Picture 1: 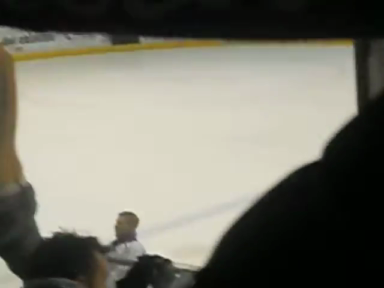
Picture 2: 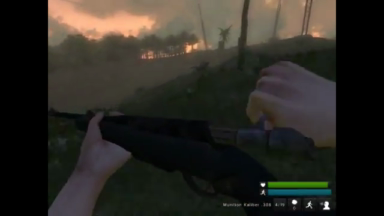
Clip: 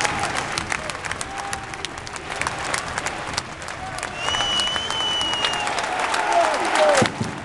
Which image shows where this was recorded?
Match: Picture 1